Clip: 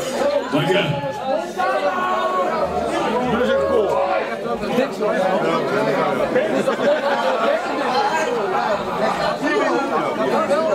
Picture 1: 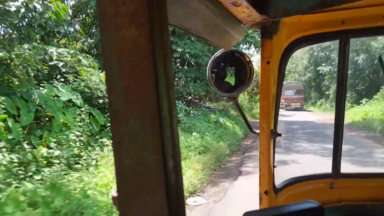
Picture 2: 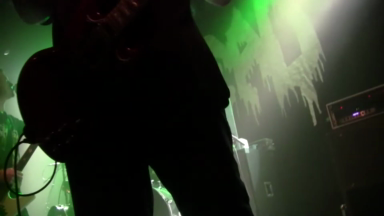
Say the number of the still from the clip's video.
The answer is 2